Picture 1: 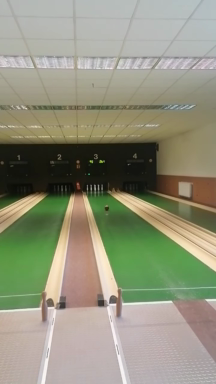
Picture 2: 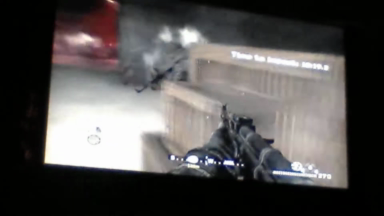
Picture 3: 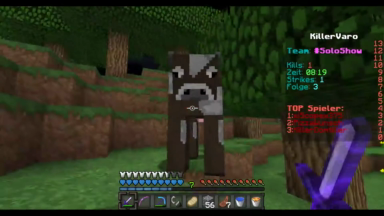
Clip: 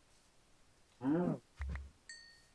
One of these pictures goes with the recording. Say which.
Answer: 3